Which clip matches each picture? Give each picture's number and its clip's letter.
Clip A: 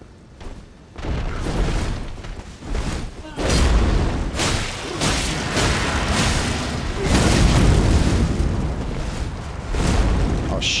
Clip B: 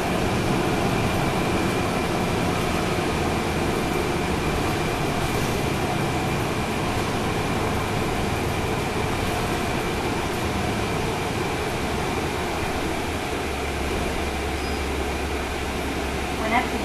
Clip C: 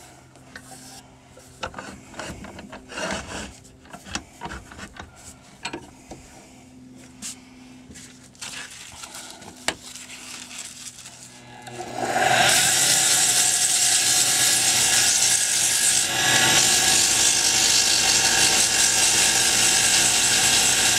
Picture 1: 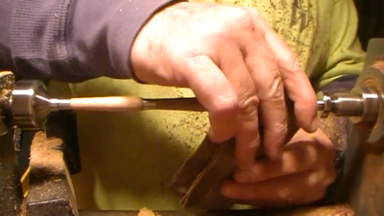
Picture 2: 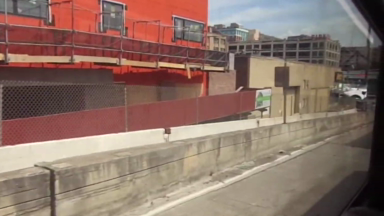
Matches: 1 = C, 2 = B